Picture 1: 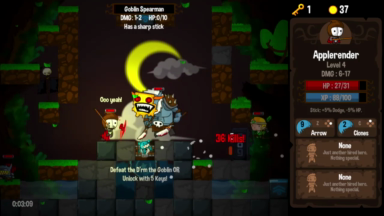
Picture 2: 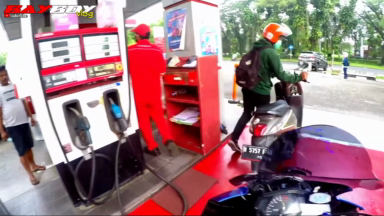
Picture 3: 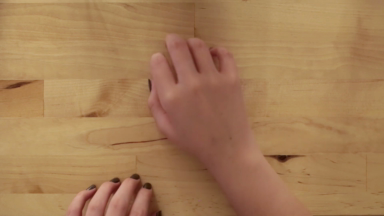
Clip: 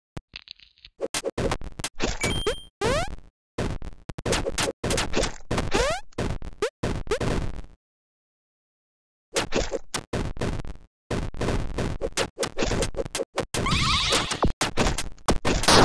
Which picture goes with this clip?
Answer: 1